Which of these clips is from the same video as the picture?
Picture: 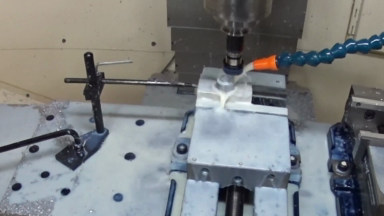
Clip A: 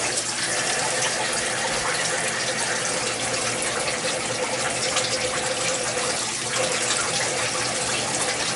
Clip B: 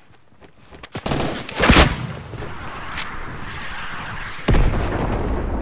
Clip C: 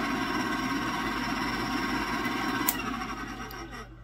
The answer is A